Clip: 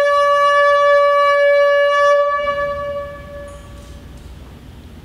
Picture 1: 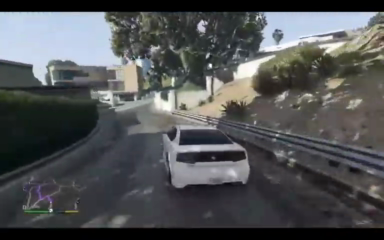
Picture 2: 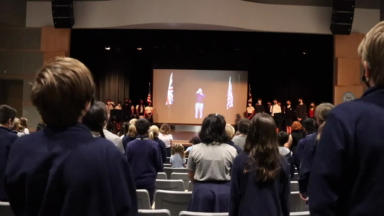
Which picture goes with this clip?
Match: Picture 2